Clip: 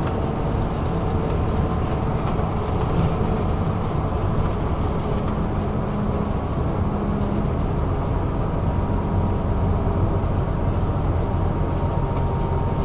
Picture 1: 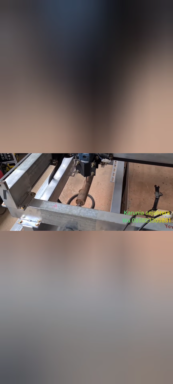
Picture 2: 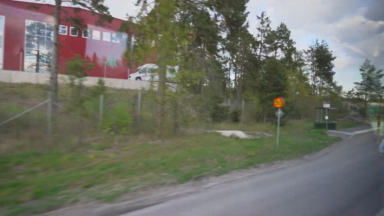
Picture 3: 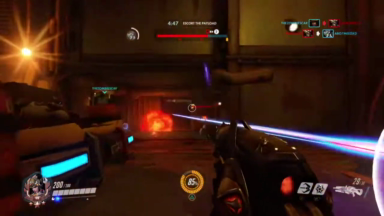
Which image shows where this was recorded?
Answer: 2